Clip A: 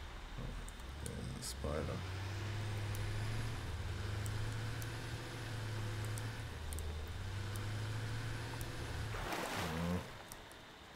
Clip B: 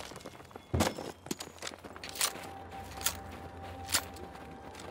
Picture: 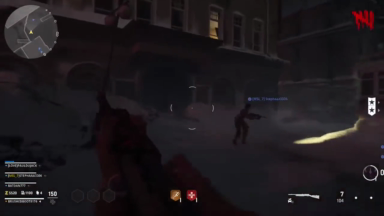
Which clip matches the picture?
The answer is B